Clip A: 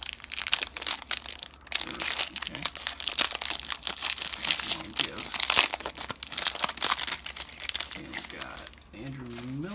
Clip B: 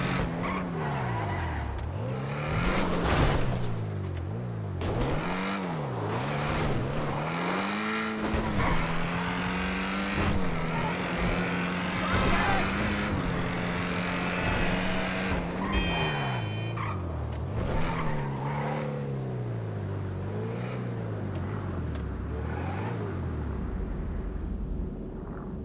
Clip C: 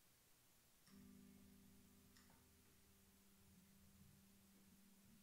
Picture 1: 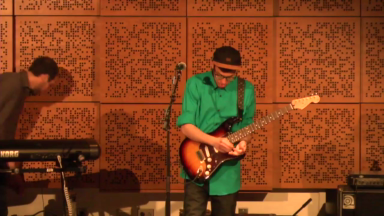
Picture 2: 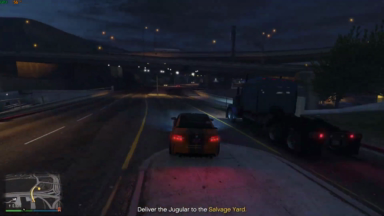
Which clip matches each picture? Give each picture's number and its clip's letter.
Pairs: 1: C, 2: B